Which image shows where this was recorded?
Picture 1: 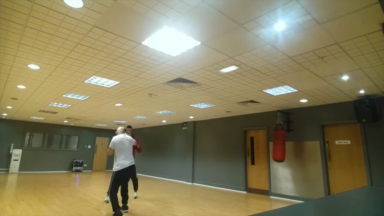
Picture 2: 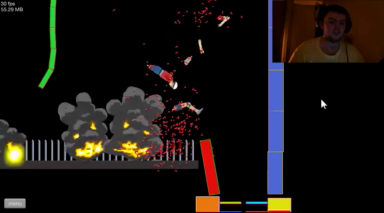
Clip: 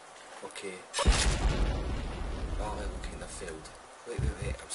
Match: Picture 2